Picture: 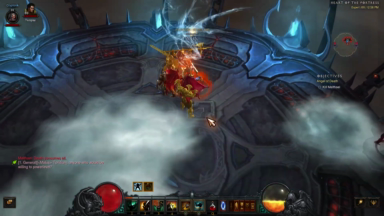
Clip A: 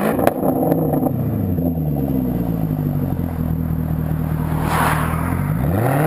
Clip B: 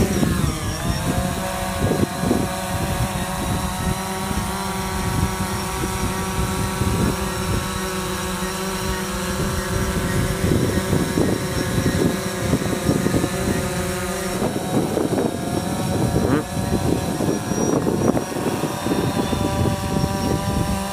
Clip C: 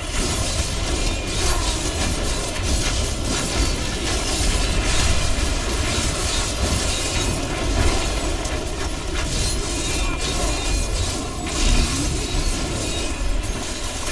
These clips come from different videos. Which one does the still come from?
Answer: C